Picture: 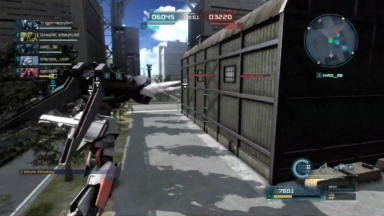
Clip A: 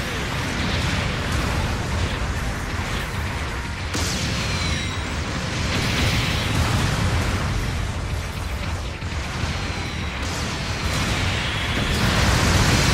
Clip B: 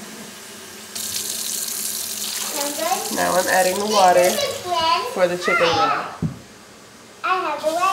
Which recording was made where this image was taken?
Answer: A